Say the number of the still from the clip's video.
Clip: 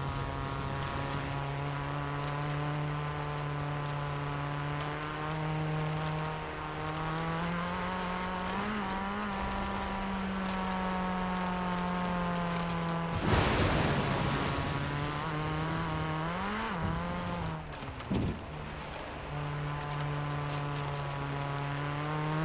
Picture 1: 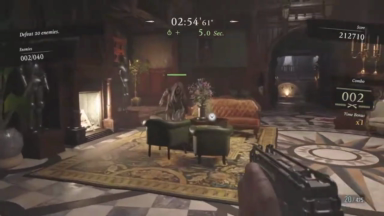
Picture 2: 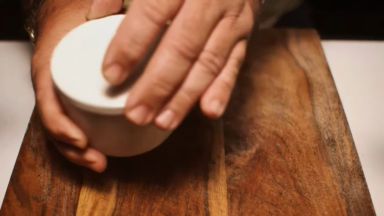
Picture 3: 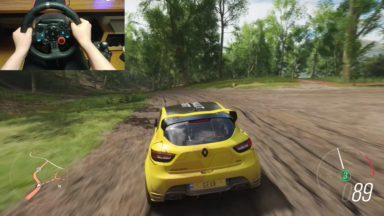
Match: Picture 3